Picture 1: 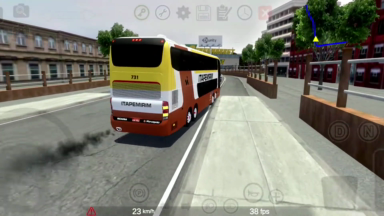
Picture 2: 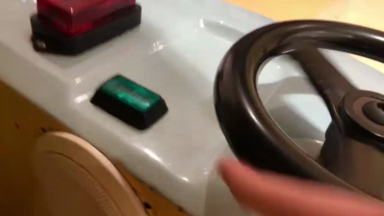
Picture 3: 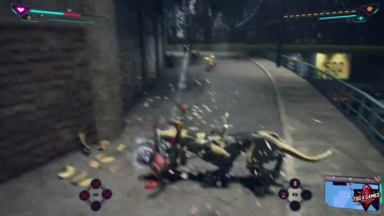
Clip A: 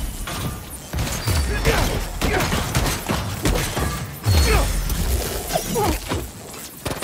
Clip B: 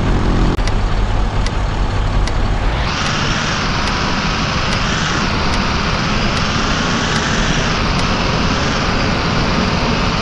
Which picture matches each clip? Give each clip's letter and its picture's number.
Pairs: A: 3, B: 1